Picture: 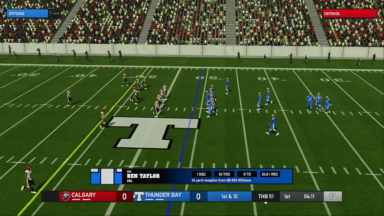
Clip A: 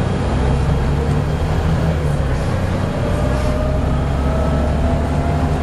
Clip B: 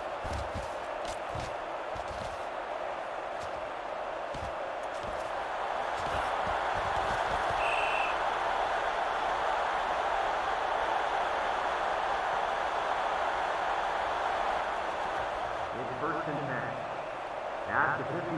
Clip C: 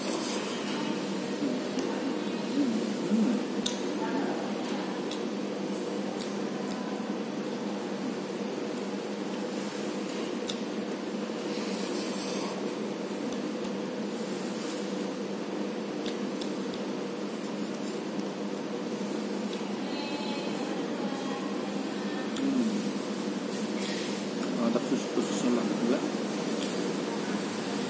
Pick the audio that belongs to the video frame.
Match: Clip B